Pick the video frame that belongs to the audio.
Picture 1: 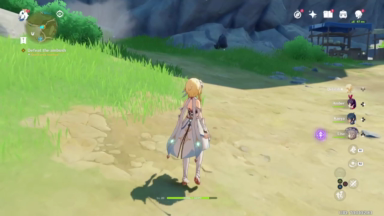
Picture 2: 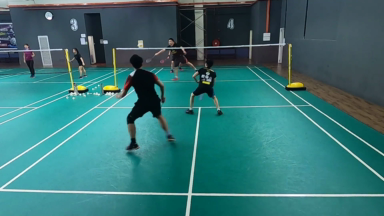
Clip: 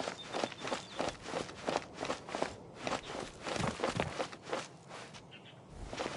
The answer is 1